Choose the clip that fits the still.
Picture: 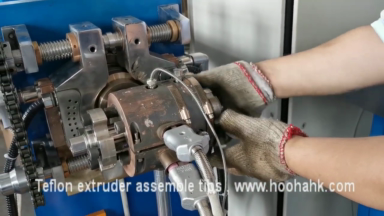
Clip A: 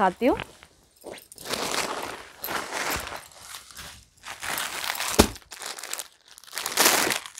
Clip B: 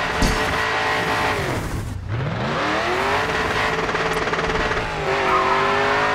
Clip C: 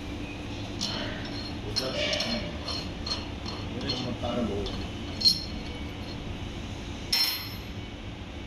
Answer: C